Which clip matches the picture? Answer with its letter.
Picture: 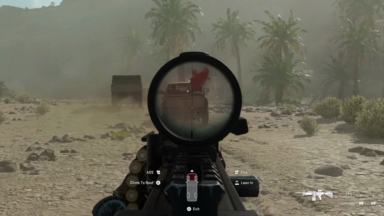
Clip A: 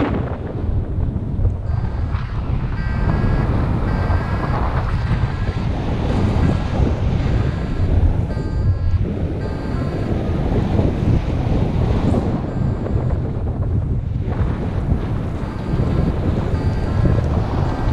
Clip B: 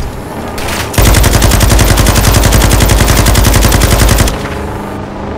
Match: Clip B